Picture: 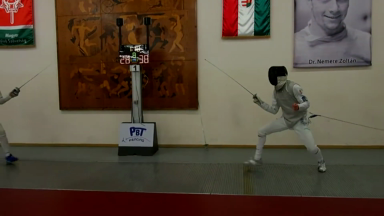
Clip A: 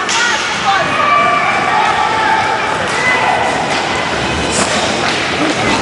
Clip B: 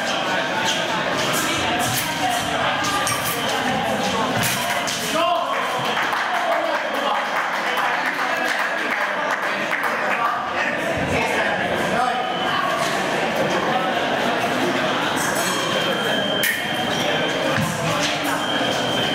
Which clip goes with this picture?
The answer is B